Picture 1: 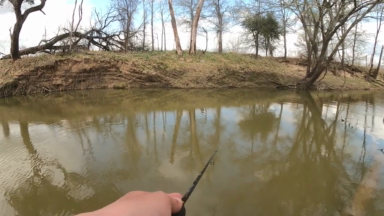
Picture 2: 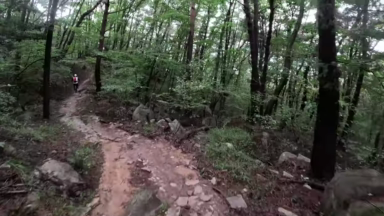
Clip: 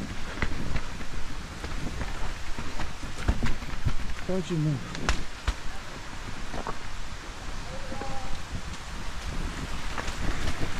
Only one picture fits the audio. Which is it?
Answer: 2